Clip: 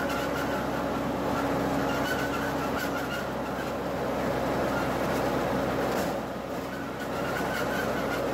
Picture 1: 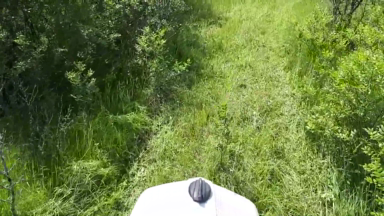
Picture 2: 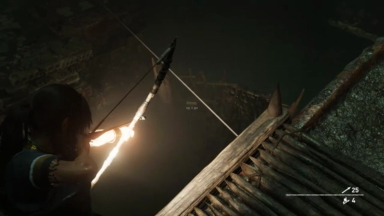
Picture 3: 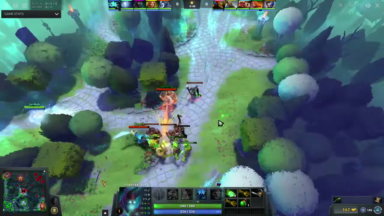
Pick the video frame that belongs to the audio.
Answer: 1